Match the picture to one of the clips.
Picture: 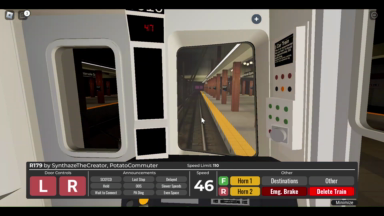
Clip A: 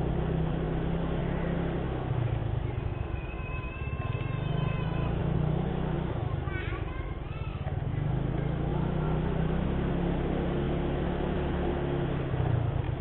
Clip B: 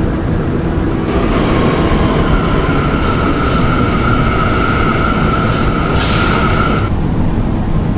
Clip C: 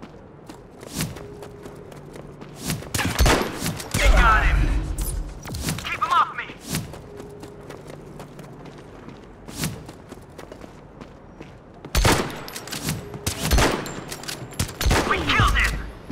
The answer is B